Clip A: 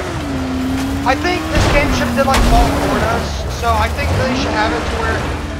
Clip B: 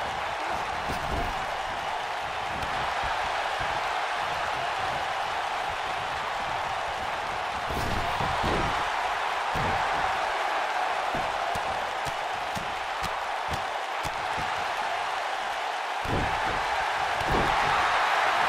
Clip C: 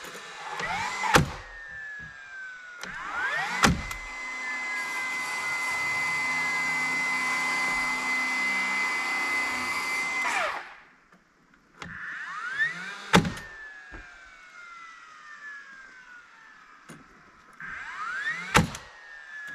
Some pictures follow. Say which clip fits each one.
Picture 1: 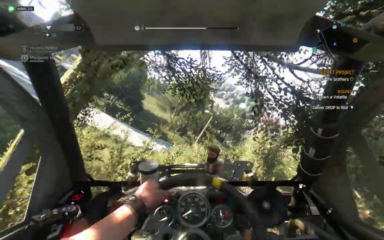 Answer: A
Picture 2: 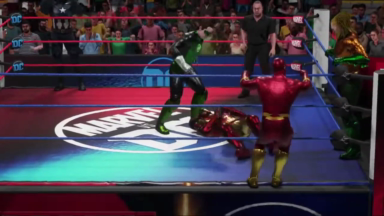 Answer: B